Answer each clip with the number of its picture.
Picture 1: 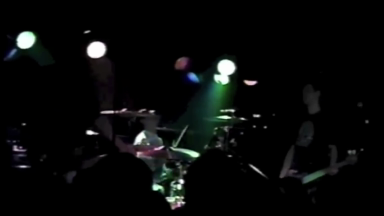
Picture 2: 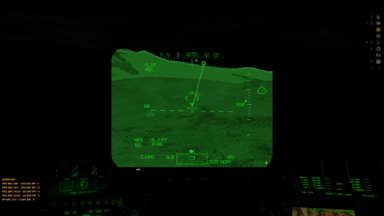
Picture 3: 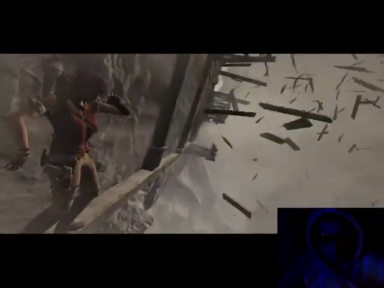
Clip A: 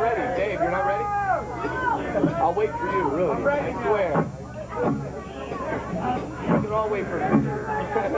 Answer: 1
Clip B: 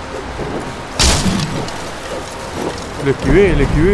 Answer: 3